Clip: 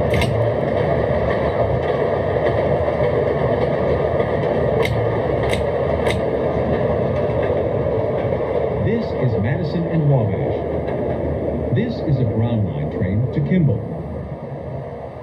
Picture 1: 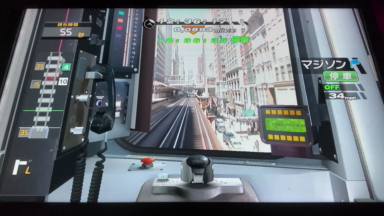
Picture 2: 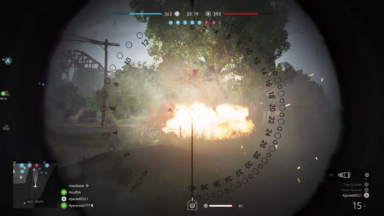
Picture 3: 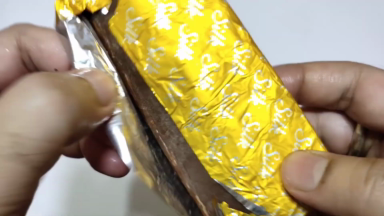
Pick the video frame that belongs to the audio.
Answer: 1